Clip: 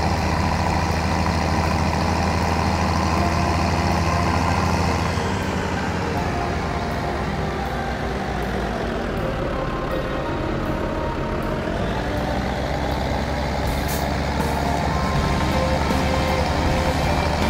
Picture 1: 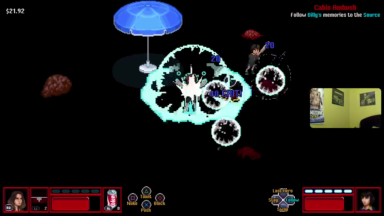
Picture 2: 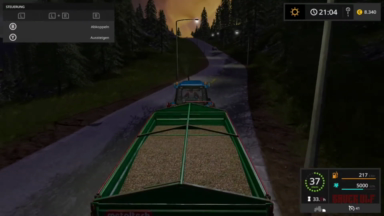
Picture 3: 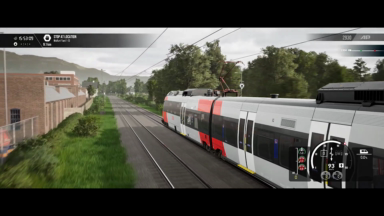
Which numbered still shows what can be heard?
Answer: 2